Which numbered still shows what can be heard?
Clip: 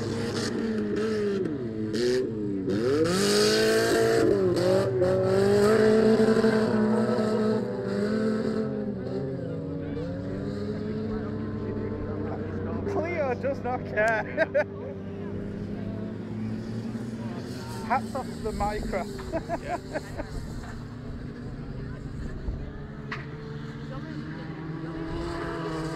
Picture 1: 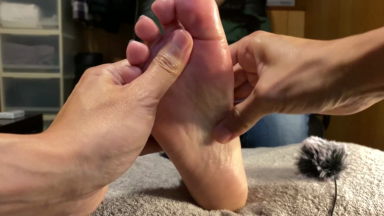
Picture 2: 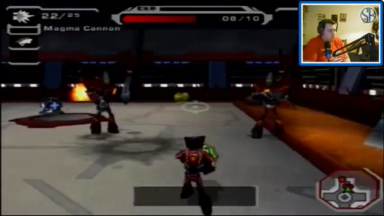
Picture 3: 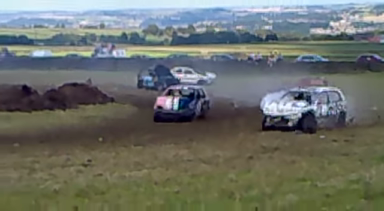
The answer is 3